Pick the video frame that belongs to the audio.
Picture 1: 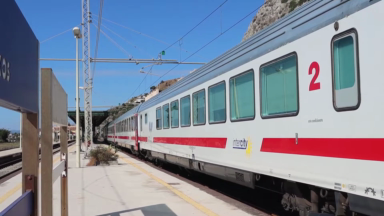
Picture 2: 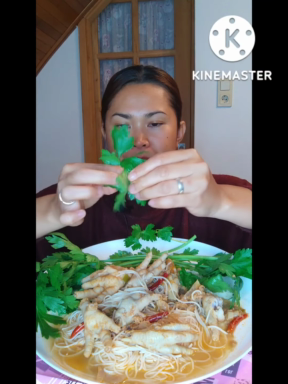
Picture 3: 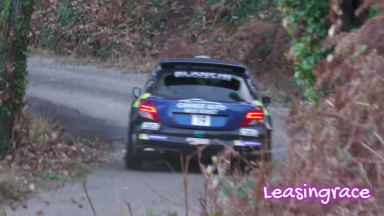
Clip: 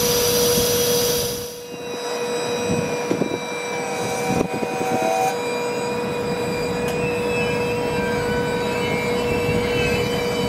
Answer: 1